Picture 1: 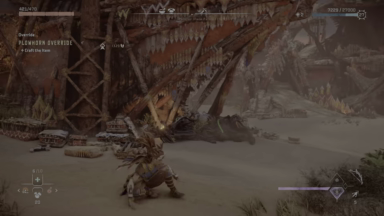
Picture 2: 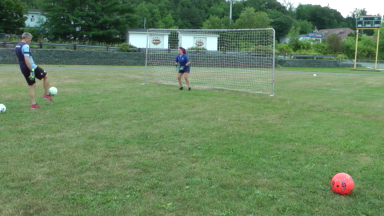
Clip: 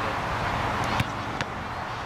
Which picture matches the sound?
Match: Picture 2